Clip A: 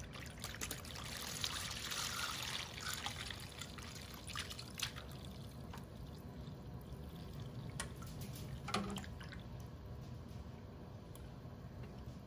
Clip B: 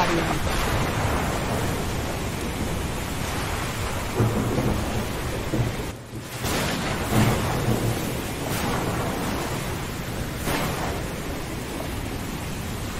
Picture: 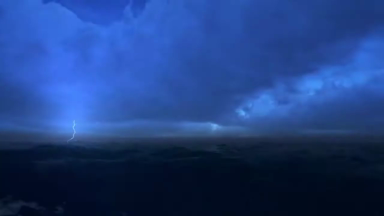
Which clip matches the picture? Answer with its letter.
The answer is B